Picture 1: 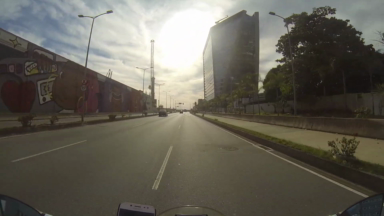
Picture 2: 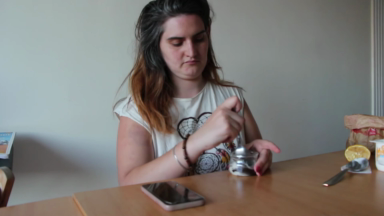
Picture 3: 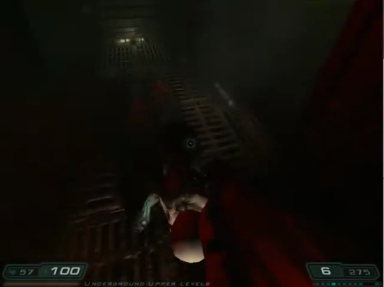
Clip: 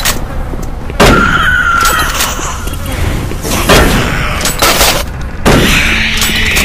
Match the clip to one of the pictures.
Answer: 3